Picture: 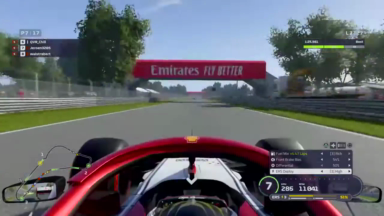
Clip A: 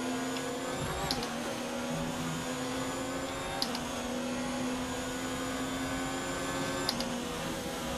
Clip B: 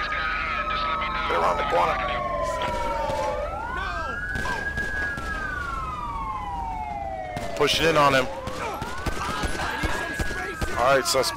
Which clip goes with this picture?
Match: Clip A